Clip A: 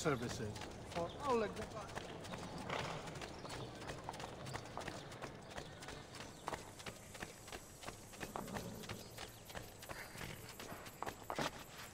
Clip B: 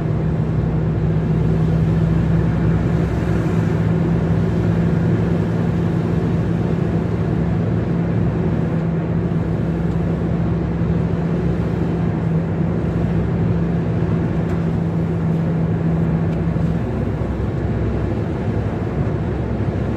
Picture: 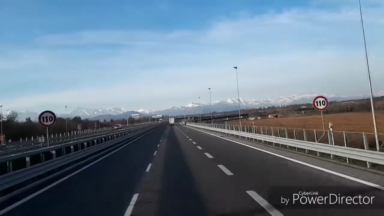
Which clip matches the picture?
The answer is B